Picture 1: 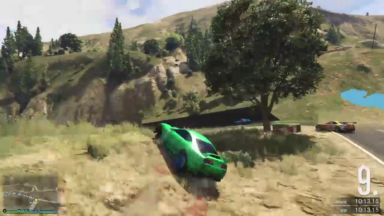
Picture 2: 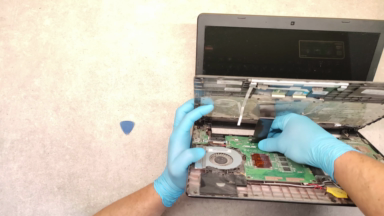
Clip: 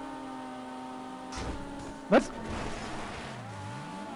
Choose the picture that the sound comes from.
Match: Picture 1